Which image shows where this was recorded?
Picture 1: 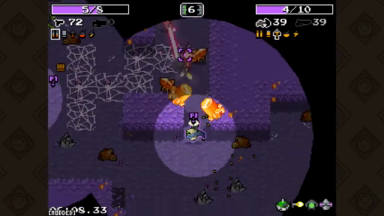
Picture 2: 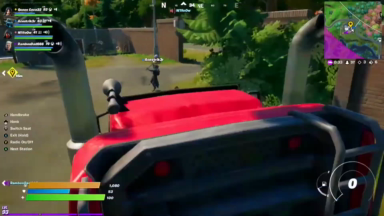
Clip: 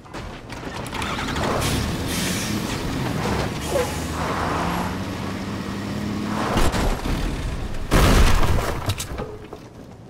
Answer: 2